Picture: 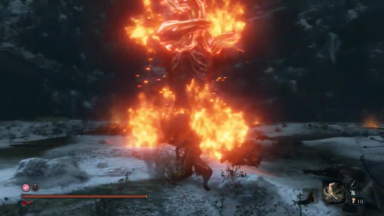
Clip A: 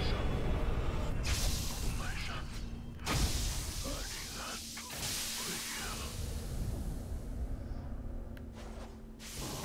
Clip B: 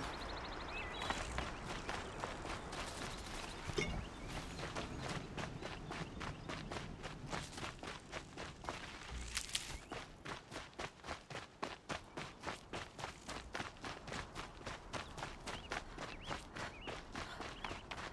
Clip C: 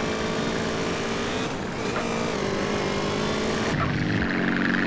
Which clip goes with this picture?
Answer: A